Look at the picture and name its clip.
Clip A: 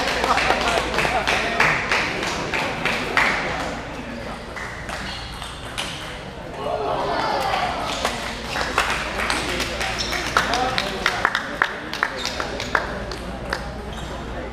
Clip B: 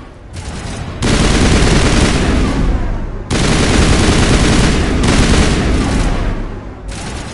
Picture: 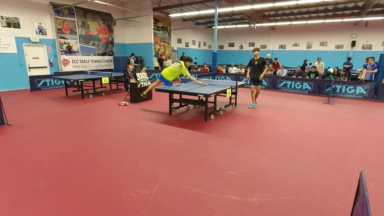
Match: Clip A